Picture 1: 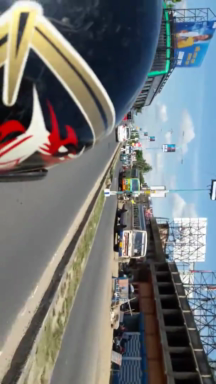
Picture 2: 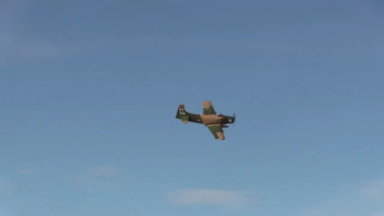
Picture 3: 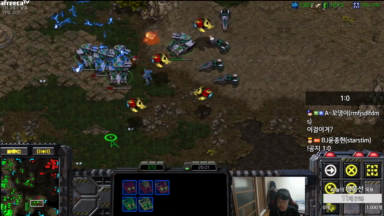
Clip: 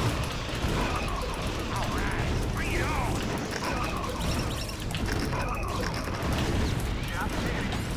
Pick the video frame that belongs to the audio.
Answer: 3